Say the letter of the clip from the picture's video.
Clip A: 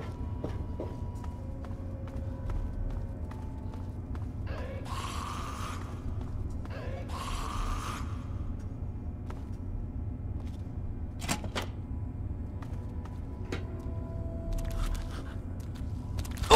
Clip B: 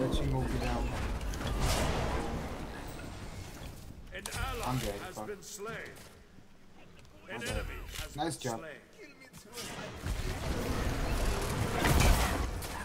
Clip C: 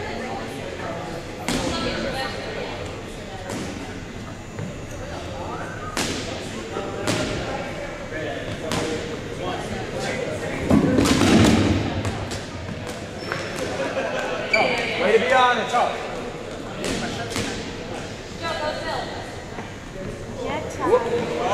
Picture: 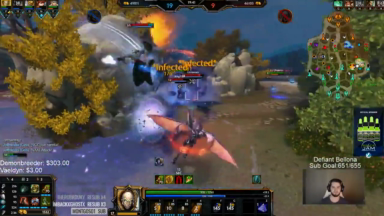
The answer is B